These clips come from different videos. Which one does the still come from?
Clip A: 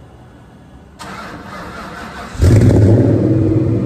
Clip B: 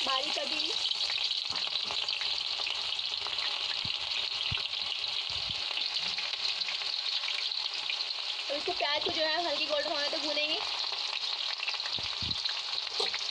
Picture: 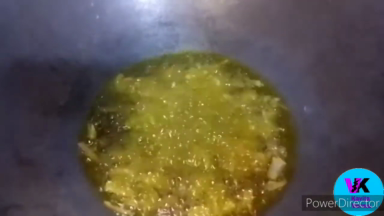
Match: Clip B